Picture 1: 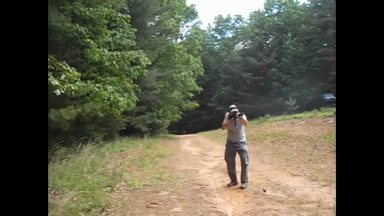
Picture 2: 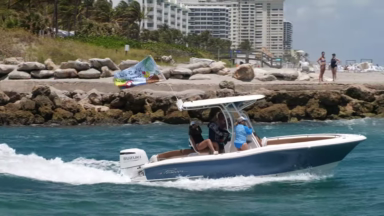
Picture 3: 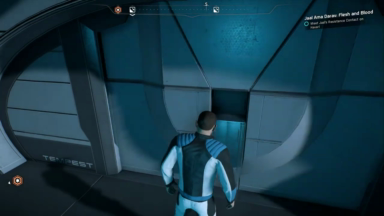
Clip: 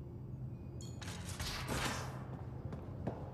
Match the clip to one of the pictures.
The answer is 3